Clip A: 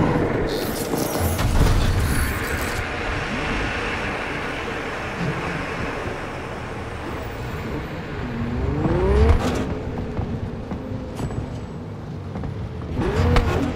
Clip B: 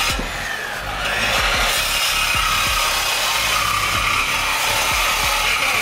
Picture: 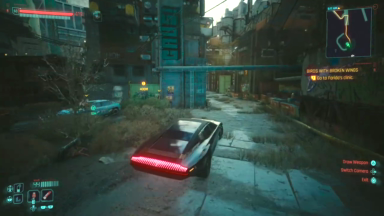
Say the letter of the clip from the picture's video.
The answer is A